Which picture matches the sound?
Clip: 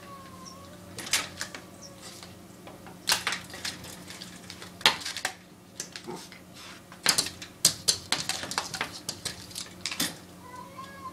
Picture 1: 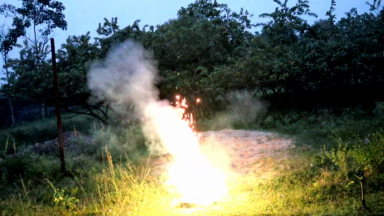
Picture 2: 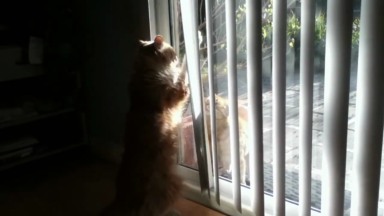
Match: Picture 2